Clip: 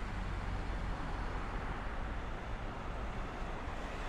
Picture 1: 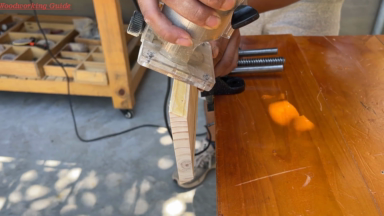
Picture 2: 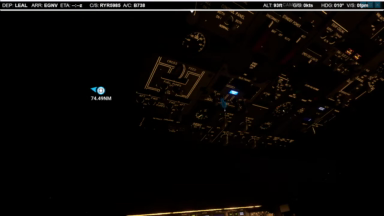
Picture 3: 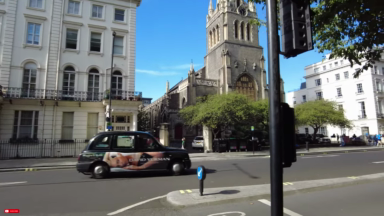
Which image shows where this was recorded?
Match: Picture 3